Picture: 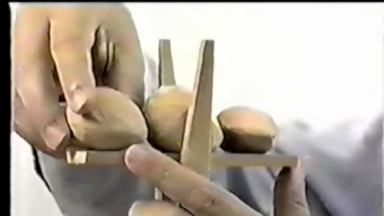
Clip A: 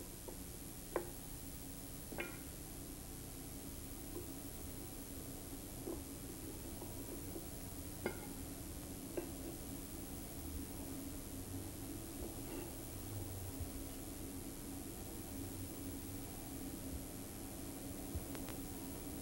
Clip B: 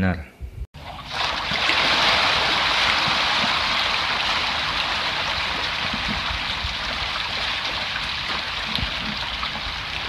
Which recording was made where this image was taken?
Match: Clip A